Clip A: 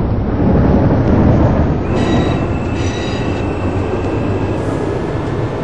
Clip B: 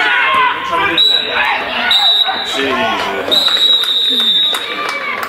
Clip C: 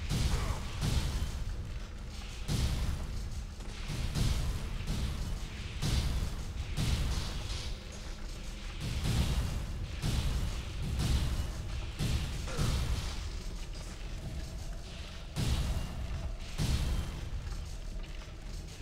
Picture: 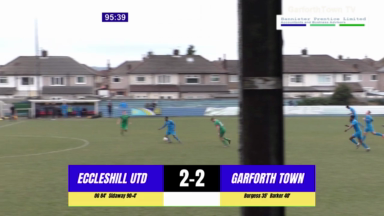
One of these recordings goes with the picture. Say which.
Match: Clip B